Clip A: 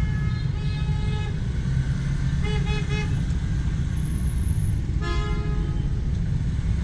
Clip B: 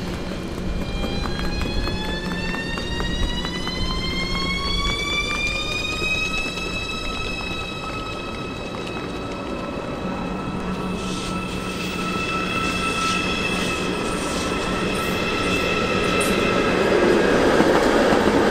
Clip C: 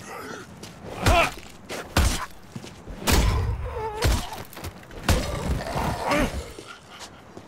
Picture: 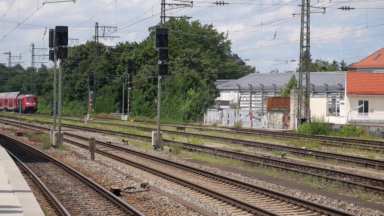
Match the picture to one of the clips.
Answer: B